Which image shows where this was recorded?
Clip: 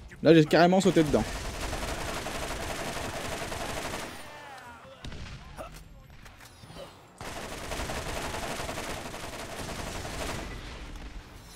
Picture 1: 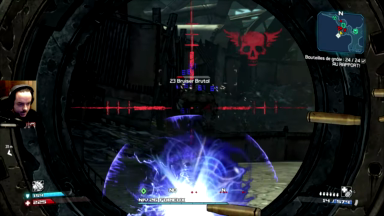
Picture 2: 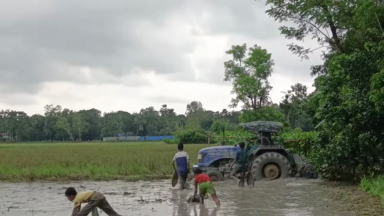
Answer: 1